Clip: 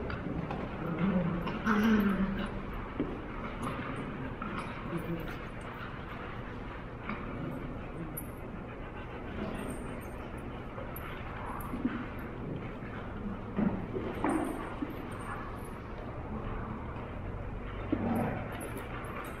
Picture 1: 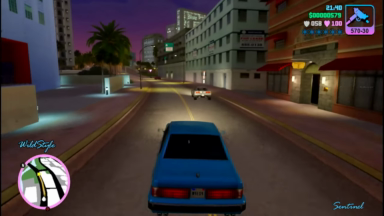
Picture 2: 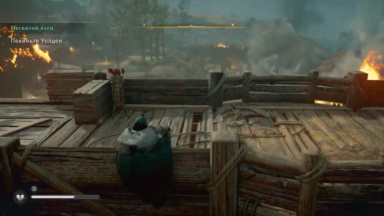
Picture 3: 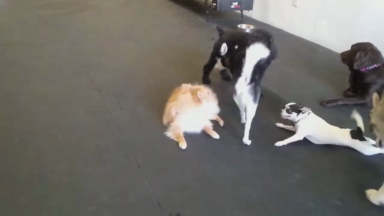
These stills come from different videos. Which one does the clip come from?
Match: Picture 3